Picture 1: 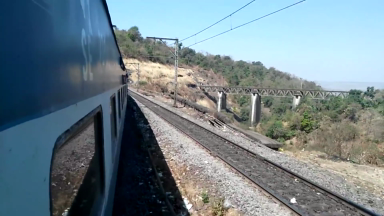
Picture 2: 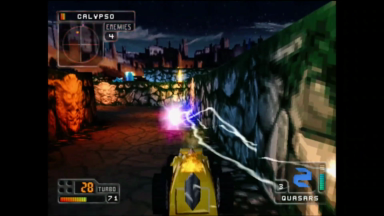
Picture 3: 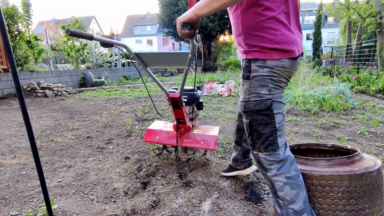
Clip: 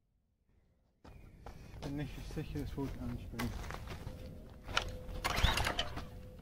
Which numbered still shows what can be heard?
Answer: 3